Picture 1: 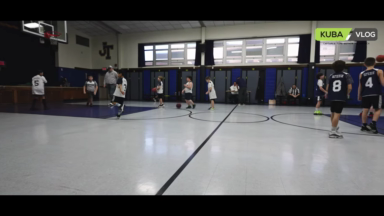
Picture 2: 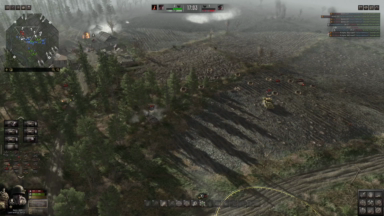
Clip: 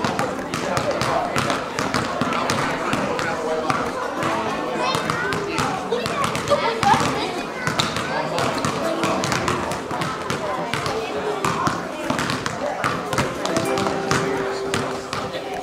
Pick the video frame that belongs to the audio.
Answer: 1